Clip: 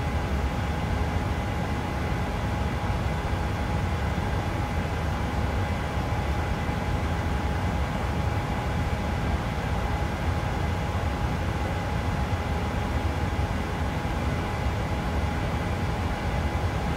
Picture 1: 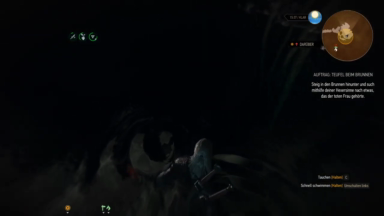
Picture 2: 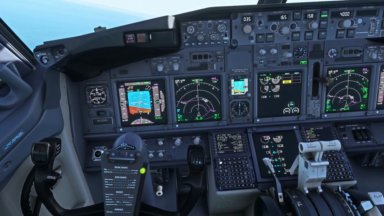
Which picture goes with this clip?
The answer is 2